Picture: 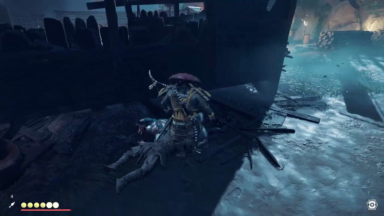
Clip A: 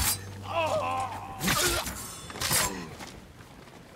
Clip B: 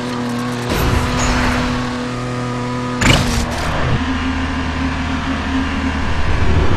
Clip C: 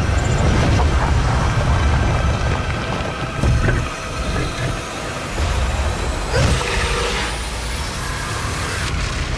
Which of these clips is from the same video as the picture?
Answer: A